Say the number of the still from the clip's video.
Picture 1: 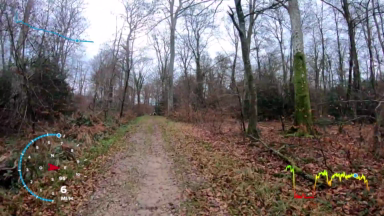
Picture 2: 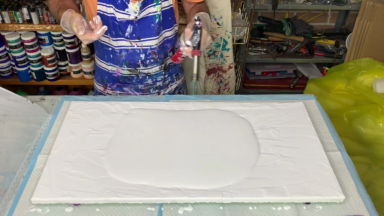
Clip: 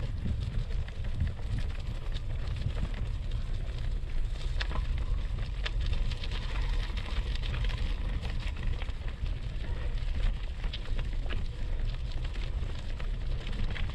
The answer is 1